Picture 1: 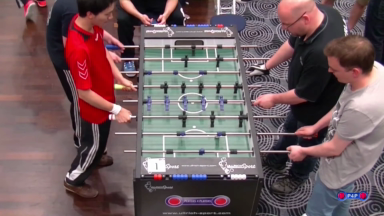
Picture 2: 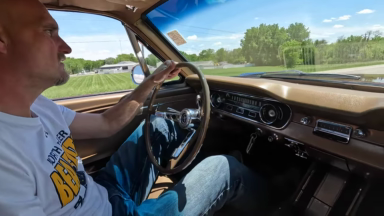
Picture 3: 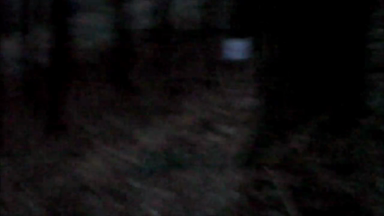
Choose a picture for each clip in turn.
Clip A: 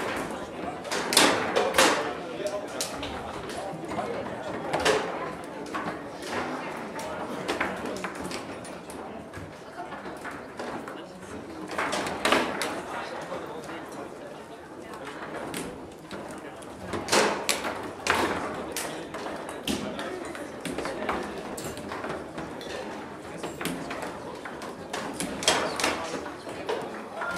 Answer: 1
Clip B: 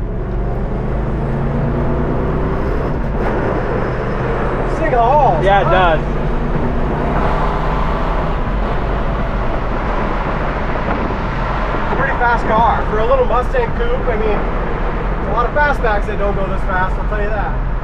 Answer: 2